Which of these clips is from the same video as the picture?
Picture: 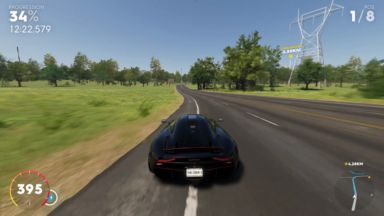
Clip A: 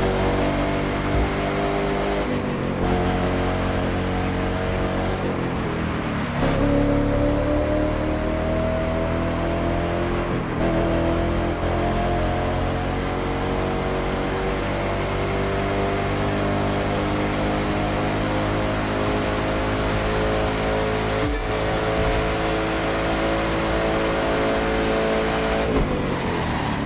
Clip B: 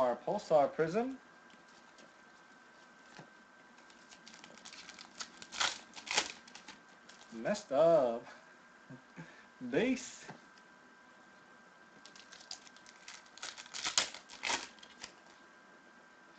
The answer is A